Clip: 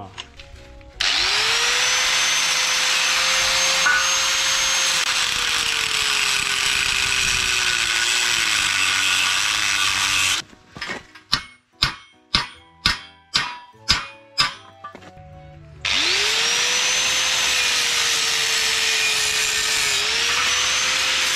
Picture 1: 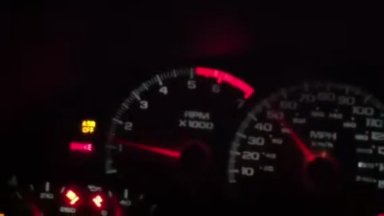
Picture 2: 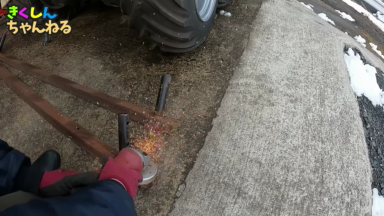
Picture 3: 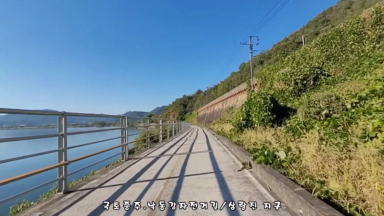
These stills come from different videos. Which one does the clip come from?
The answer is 2